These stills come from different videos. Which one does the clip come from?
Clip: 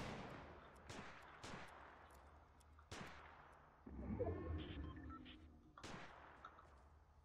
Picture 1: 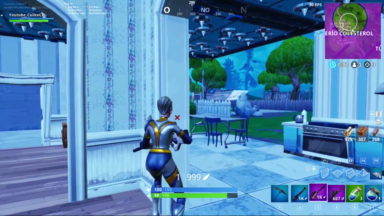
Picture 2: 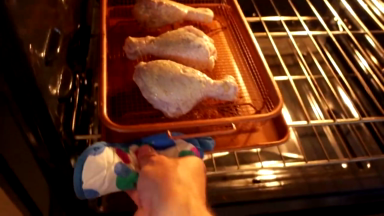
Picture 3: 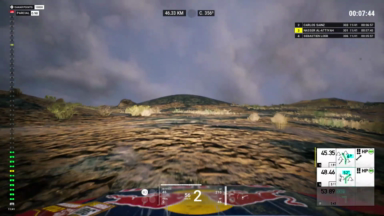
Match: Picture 1